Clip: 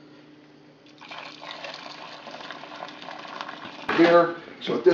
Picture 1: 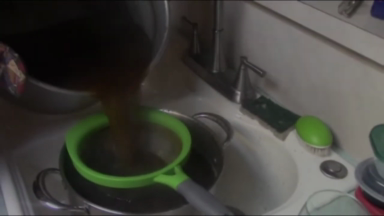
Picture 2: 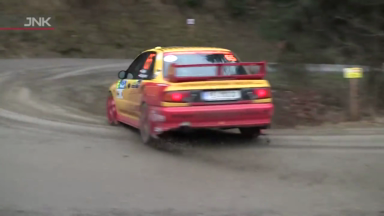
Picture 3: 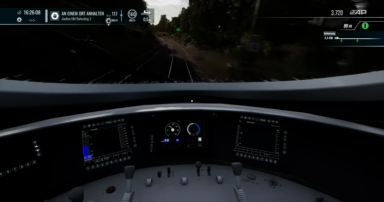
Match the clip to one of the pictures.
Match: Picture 1